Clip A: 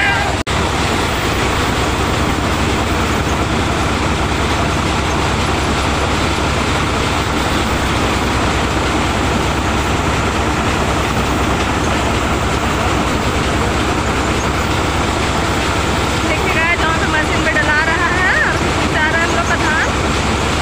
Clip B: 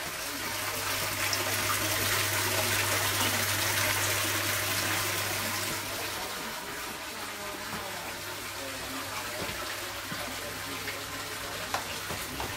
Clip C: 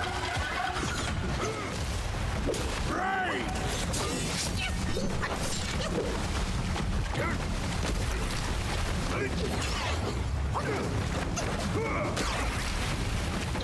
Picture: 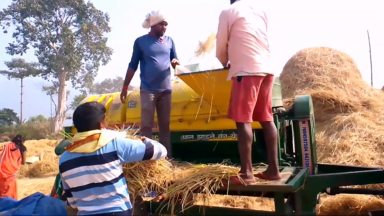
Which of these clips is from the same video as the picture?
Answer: A